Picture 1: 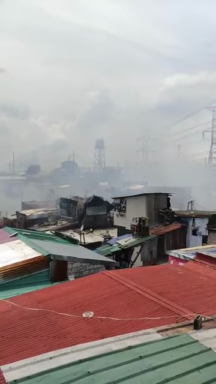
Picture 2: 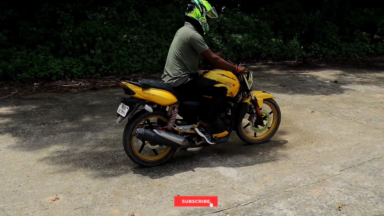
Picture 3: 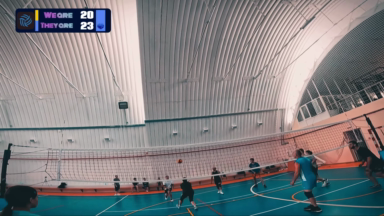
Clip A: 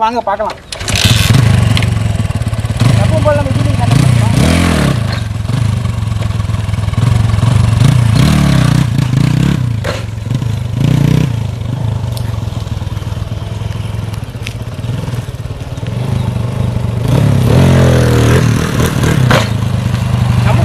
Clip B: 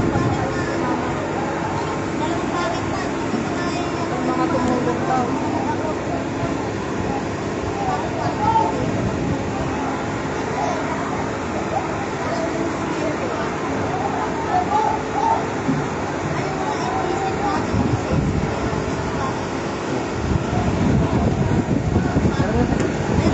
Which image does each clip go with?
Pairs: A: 2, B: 1